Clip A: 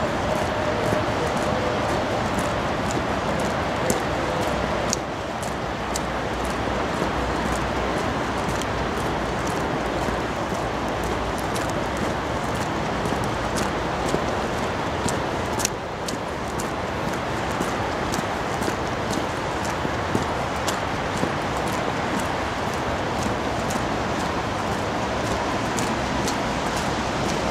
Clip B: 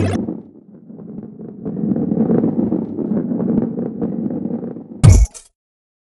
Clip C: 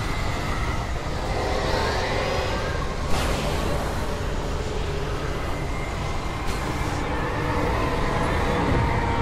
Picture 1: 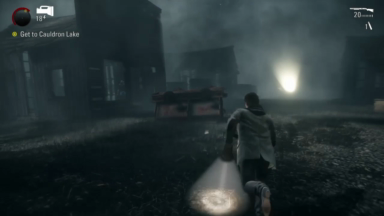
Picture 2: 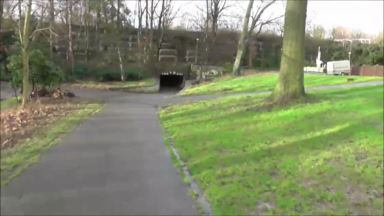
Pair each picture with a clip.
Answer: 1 C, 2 A